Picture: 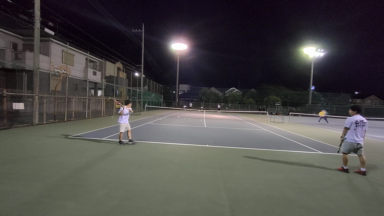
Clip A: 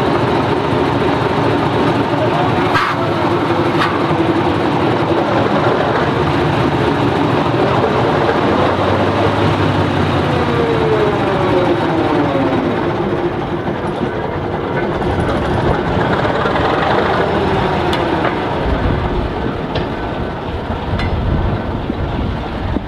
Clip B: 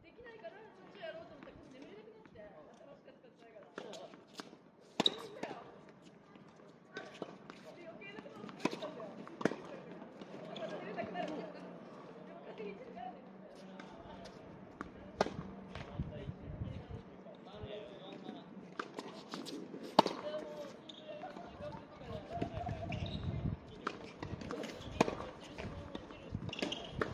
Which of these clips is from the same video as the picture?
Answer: B